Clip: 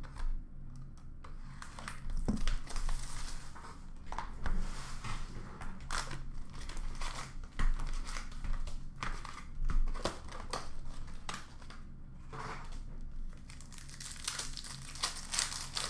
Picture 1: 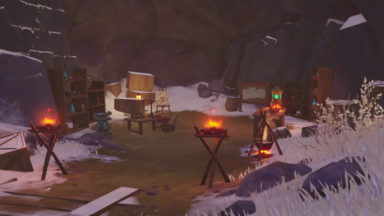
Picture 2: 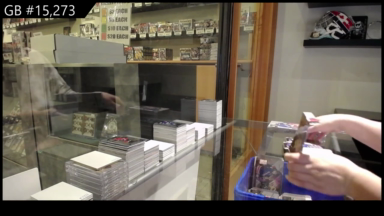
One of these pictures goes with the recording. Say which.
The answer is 2